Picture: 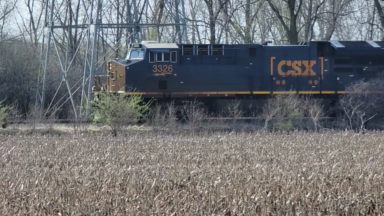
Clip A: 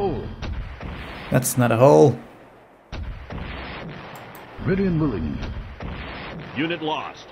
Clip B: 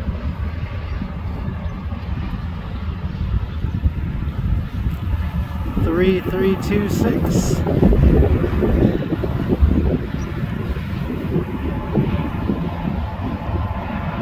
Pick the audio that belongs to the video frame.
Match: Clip B